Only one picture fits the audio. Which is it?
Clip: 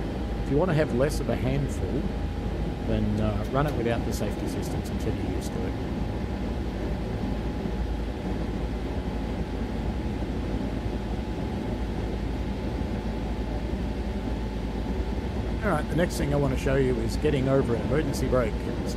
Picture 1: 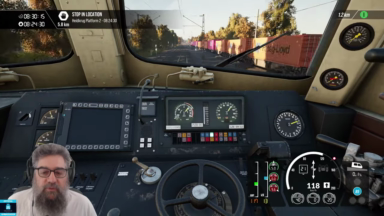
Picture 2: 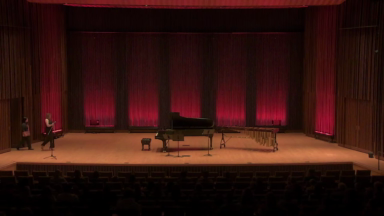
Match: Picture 1